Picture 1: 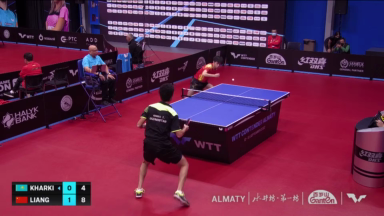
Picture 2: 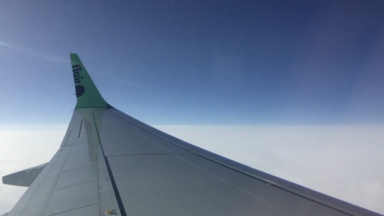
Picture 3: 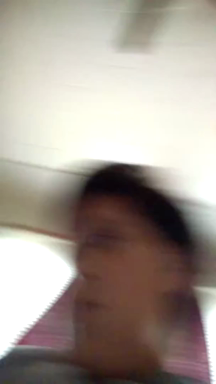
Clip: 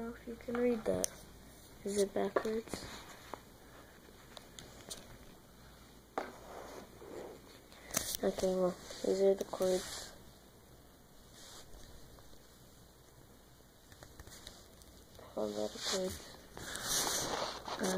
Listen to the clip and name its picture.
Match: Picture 3